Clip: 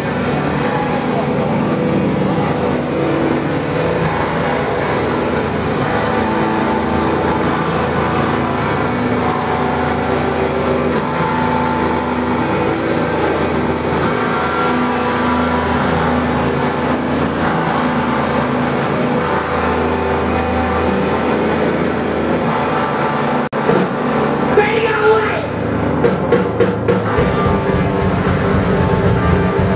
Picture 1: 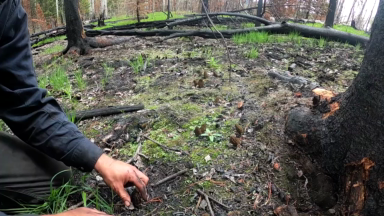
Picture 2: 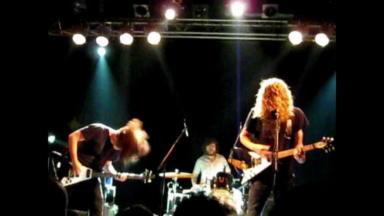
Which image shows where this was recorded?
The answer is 2